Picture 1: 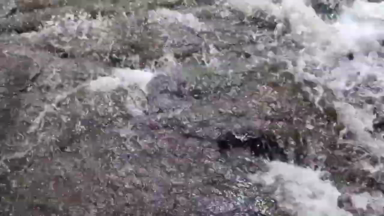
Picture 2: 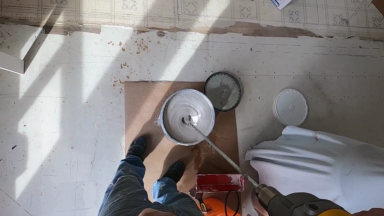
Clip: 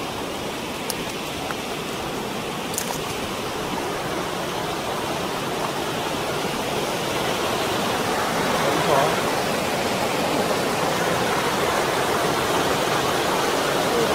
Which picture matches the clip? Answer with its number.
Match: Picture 1